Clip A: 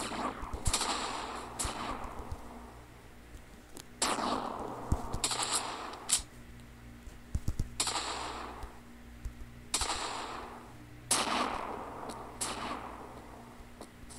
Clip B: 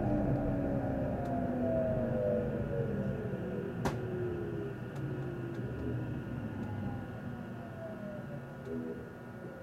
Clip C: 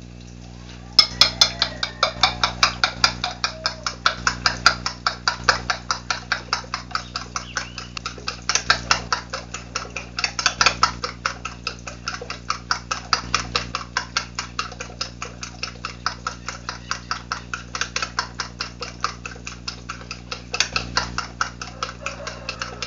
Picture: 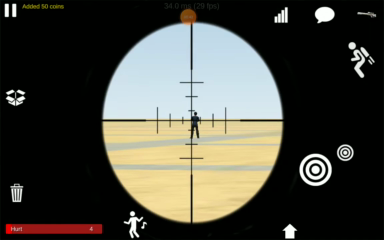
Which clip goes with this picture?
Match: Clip A